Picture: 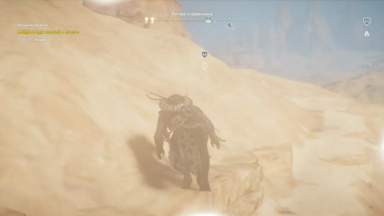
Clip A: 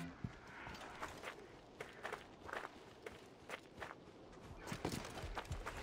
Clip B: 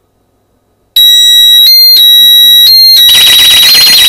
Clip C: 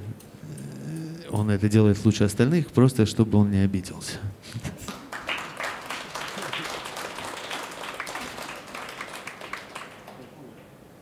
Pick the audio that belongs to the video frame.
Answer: A